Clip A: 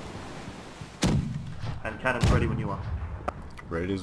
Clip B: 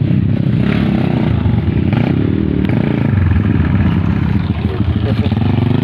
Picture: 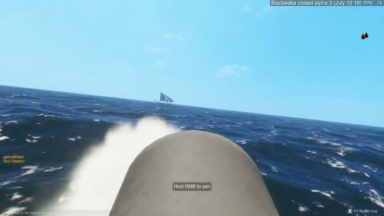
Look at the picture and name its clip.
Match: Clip A